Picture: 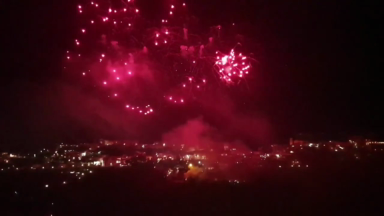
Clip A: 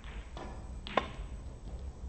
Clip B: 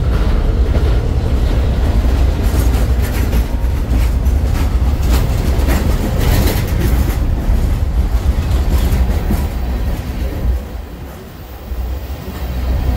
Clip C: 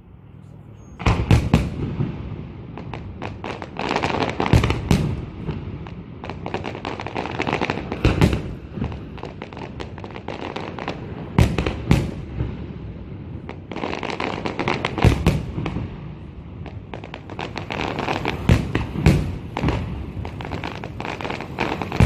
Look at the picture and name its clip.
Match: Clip C